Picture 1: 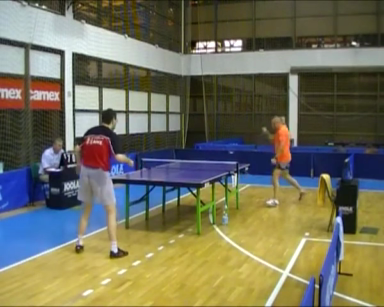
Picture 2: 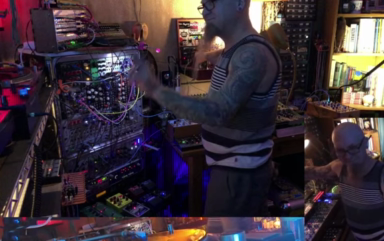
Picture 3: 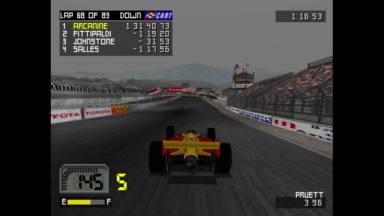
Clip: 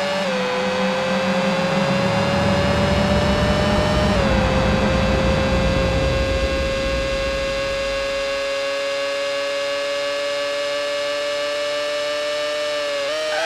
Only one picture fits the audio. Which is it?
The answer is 3